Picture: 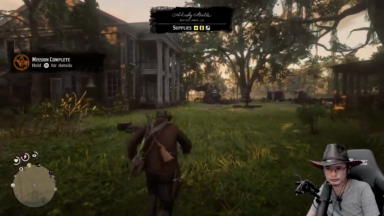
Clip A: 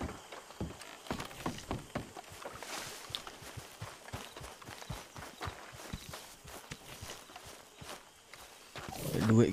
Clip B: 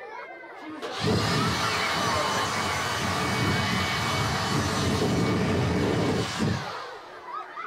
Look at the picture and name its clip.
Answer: A